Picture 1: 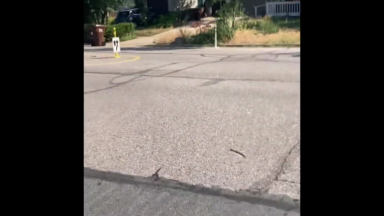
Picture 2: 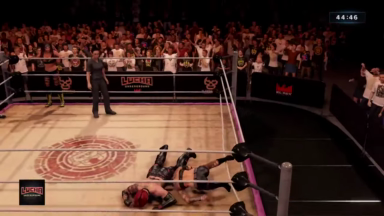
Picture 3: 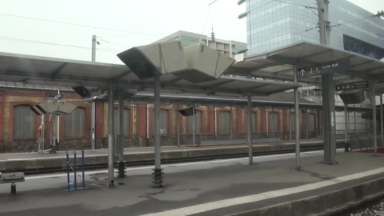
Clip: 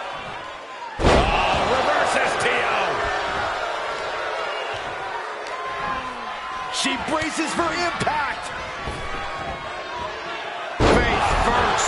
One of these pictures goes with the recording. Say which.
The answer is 2